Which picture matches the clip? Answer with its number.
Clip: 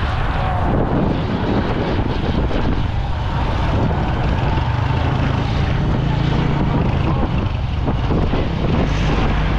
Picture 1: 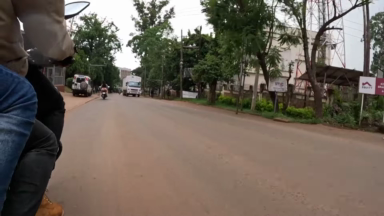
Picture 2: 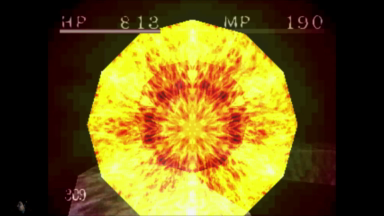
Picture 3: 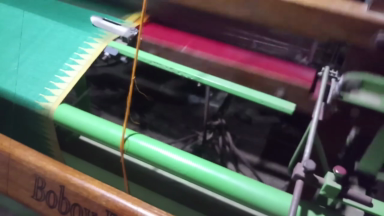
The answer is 1